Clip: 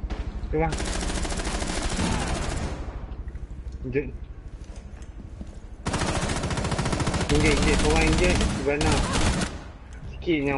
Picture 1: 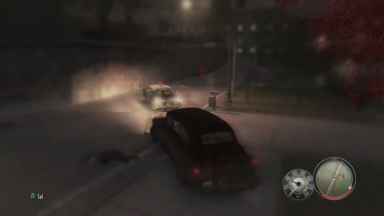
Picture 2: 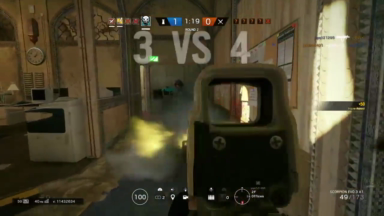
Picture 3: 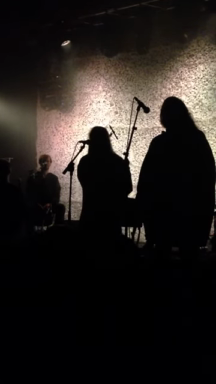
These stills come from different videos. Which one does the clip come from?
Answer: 2